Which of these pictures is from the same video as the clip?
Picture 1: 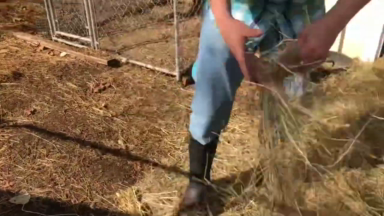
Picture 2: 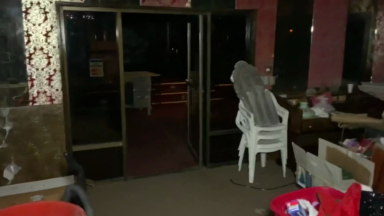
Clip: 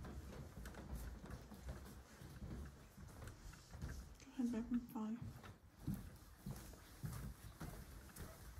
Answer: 2